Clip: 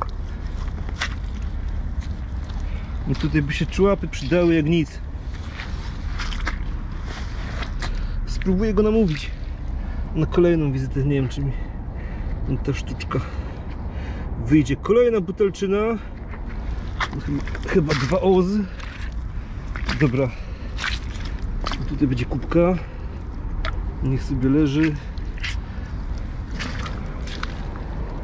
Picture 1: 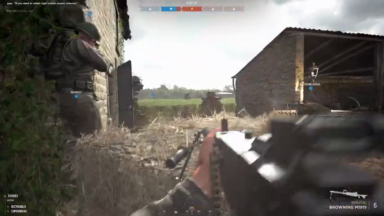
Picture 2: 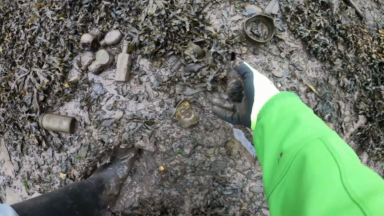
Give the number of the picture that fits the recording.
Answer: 2